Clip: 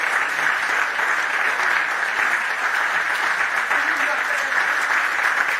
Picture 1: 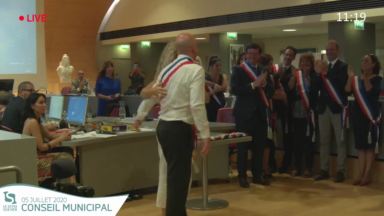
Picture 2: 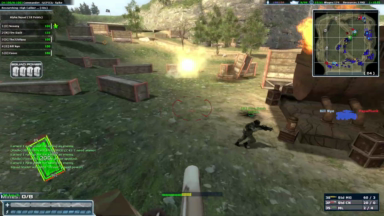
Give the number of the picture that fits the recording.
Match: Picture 1